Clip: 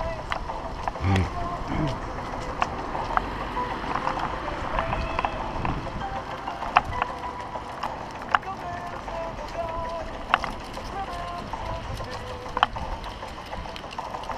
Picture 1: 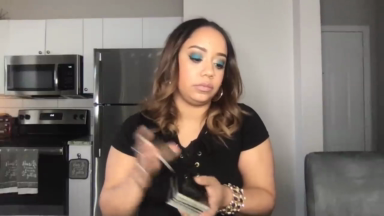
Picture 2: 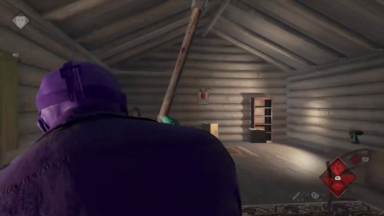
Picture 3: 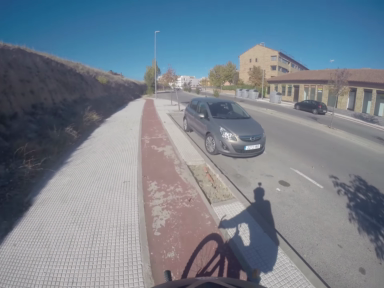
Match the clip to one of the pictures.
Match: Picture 3